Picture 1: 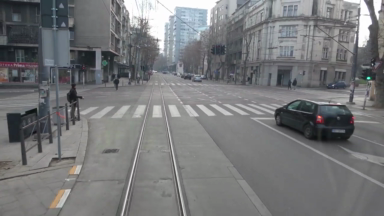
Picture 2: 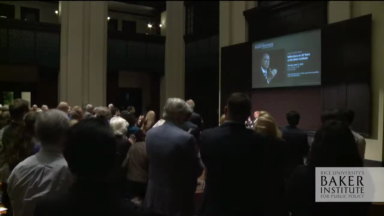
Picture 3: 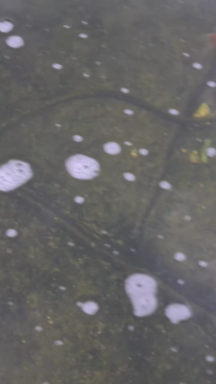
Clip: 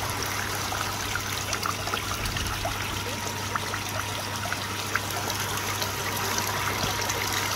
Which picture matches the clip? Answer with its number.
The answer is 3